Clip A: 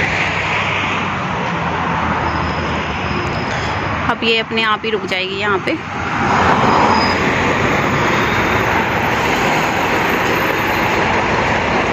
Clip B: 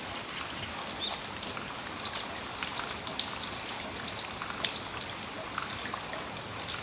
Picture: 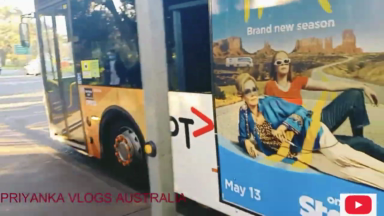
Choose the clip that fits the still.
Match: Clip A